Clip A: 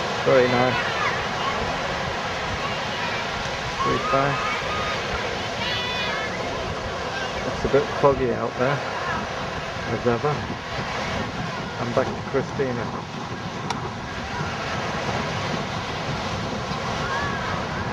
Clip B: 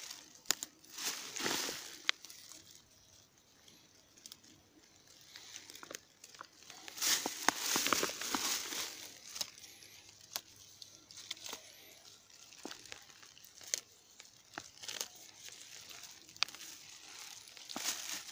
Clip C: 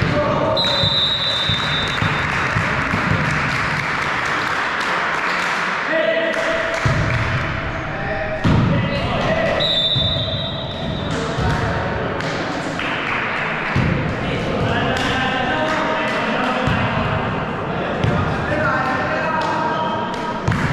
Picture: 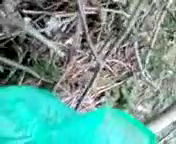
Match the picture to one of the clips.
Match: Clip B